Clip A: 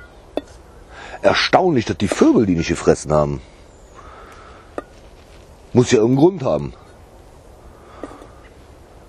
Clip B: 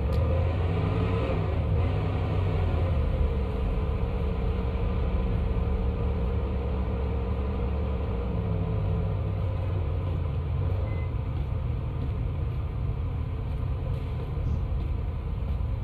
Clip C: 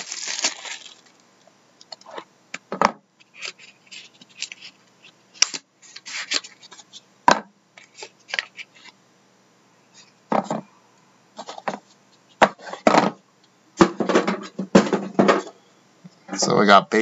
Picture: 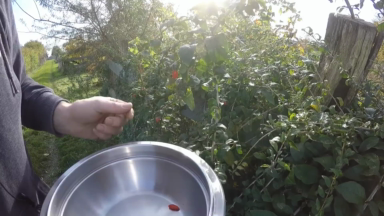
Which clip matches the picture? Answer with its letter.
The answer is A